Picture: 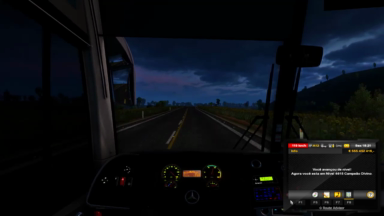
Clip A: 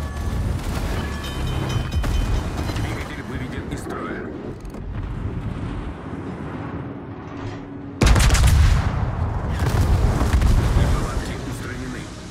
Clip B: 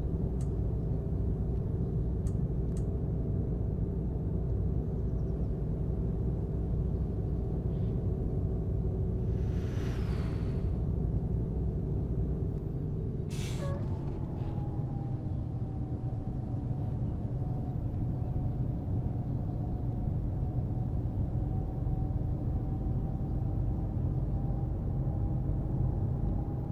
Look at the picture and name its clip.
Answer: B